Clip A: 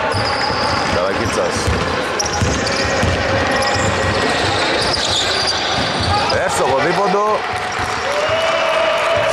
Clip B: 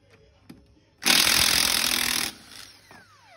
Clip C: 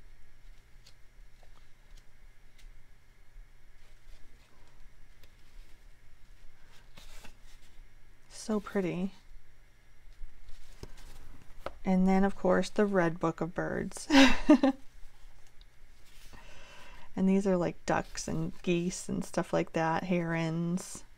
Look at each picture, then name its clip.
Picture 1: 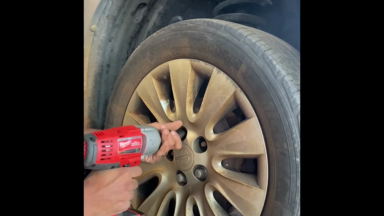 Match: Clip B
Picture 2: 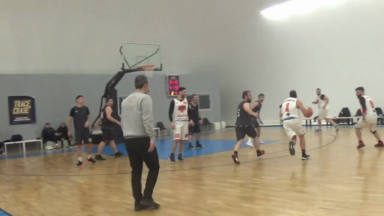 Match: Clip A